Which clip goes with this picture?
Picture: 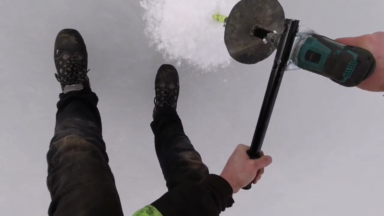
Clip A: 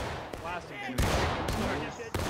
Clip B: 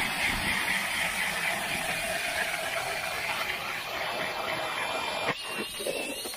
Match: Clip B